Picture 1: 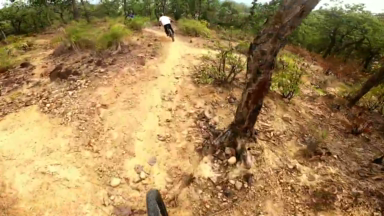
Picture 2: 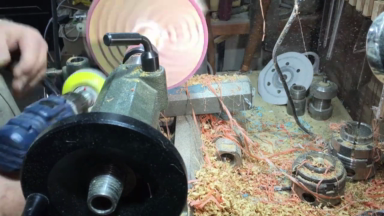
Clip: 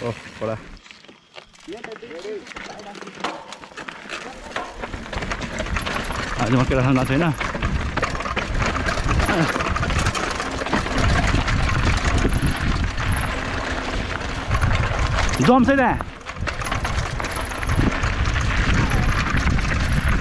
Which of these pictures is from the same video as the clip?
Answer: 1